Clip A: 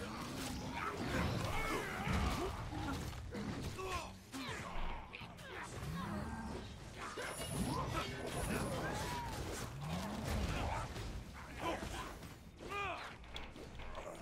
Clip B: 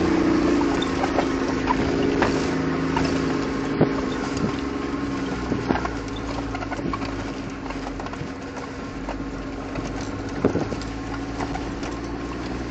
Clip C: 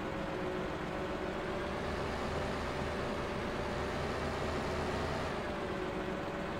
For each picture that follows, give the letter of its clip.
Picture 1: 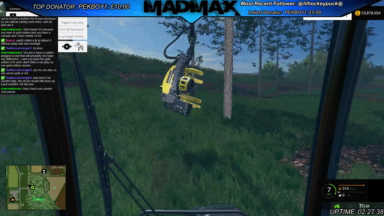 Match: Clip C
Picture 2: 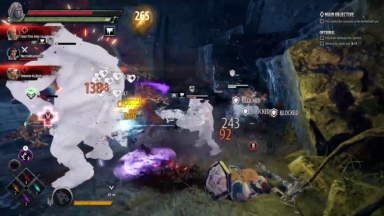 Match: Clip A